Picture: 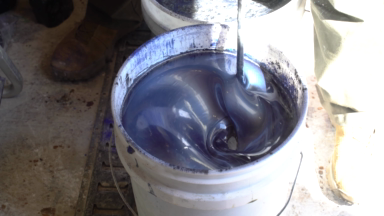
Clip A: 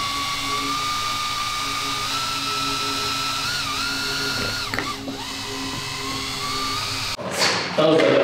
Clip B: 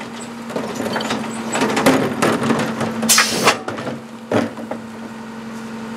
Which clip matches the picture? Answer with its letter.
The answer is A